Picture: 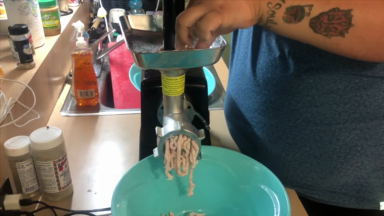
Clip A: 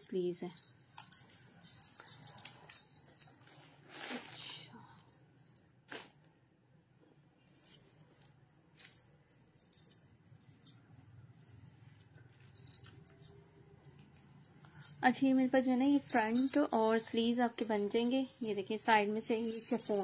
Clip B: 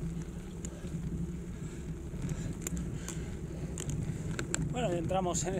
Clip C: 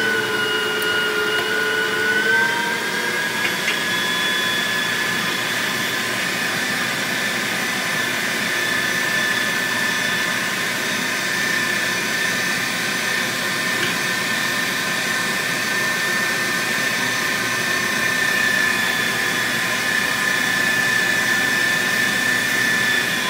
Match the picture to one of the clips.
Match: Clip C